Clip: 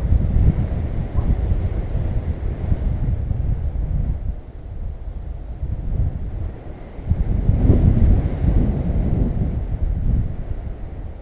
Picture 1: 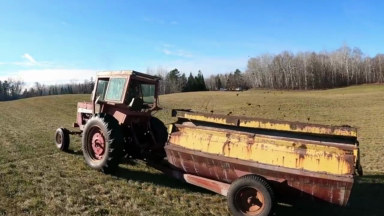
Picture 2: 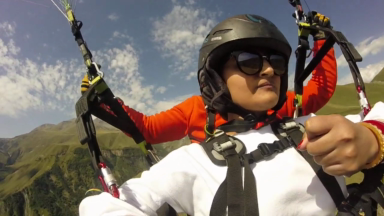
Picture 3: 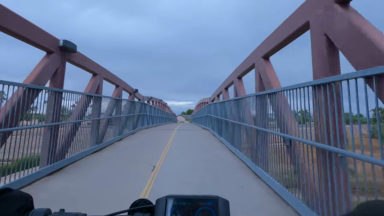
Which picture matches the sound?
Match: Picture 2